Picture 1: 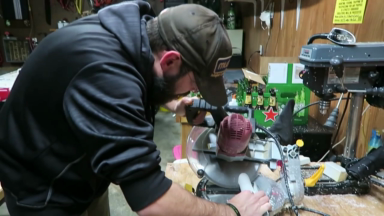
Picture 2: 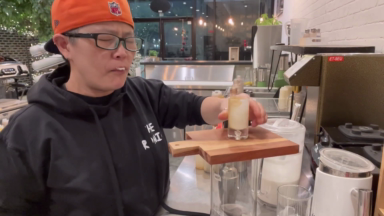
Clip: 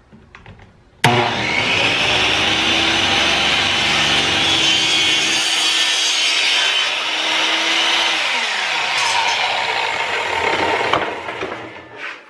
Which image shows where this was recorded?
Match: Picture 1